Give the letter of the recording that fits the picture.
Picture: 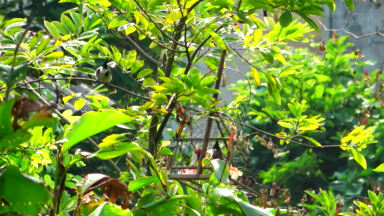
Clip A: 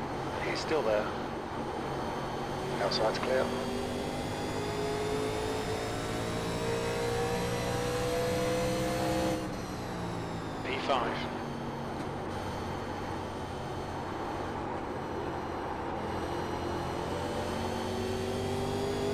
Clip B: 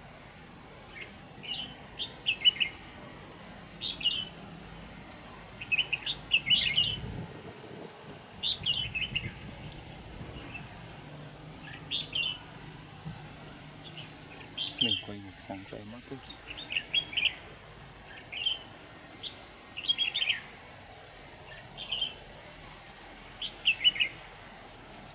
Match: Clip B